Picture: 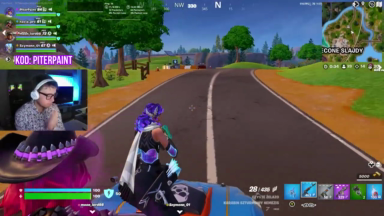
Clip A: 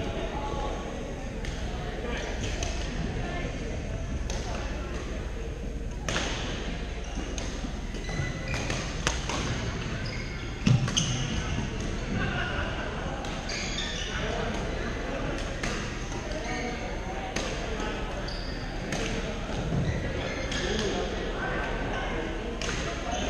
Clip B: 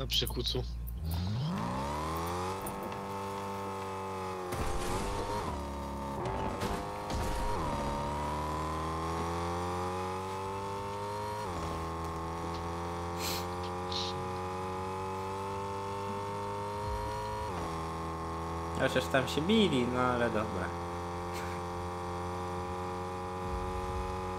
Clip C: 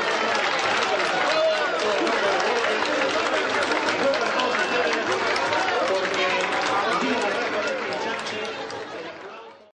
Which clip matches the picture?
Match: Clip B